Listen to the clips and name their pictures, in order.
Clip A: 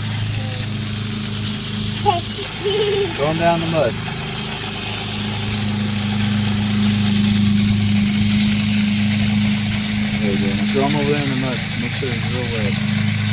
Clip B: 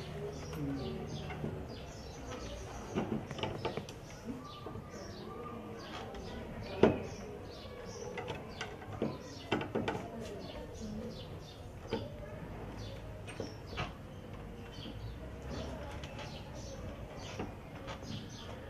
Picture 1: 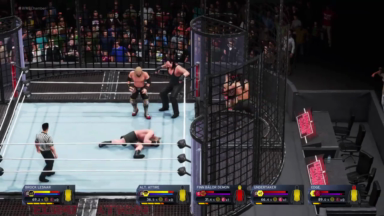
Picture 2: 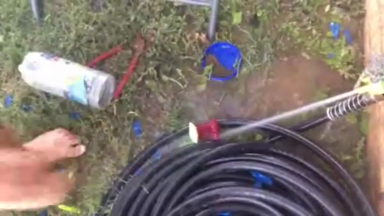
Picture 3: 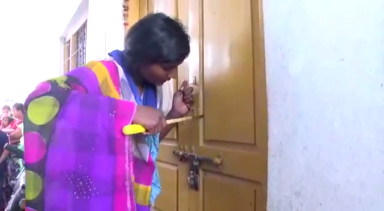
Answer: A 2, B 3